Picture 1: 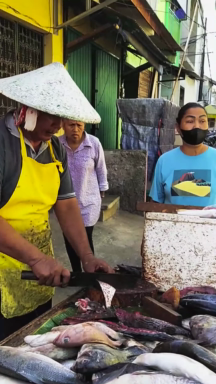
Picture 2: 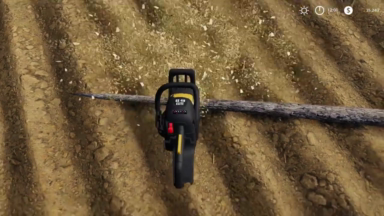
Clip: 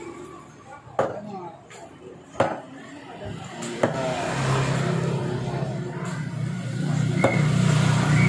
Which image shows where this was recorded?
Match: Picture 1